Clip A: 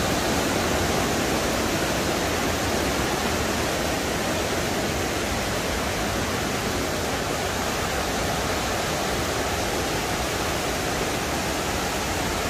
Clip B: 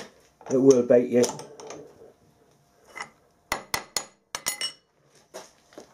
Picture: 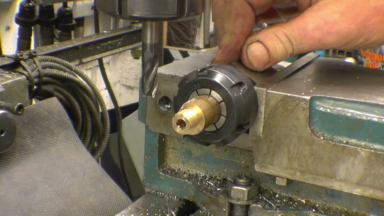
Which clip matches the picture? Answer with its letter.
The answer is B